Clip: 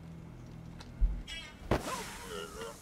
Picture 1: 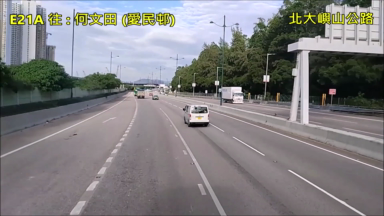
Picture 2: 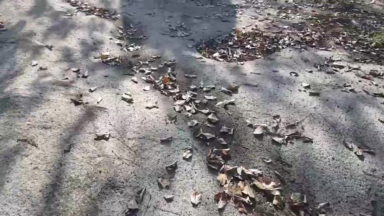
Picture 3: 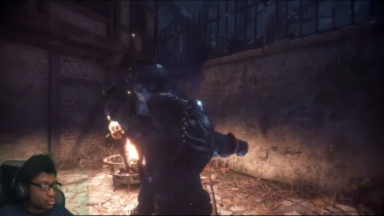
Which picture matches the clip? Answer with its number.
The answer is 3